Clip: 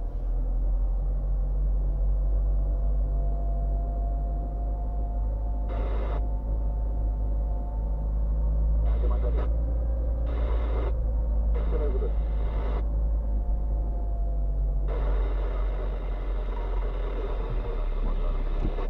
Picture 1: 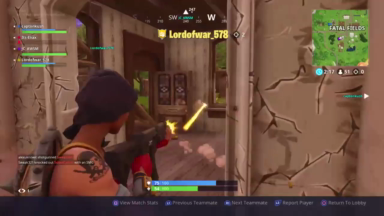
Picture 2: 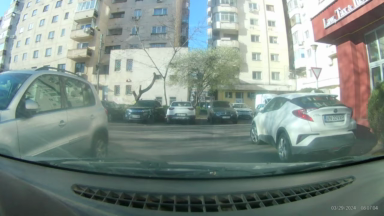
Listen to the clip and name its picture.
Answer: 2